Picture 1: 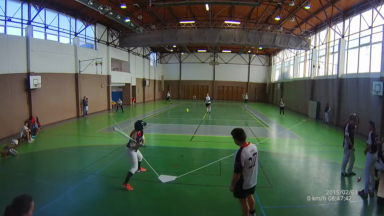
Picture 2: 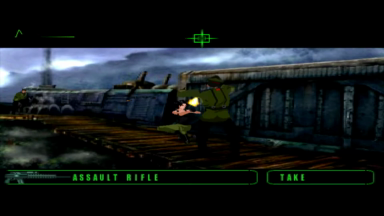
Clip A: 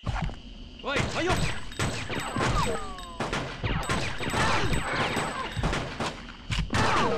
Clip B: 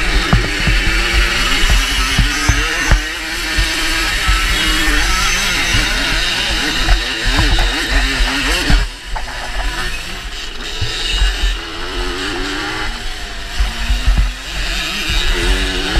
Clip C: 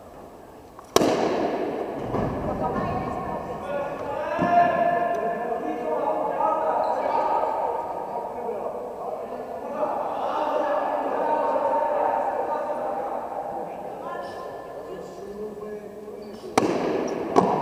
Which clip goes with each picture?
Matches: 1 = C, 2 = A